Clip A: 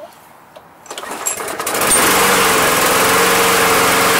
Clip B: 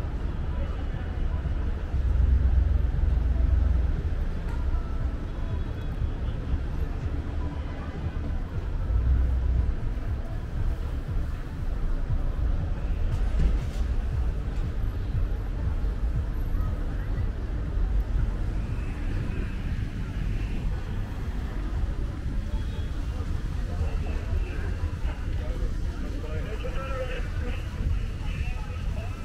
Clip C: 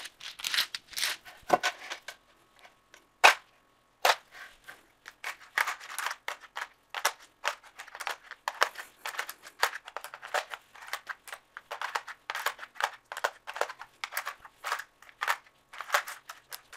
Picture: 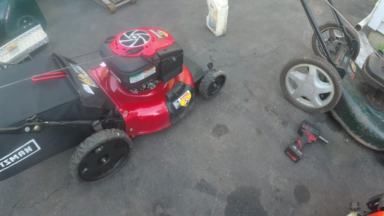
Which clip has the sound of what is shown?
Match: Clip A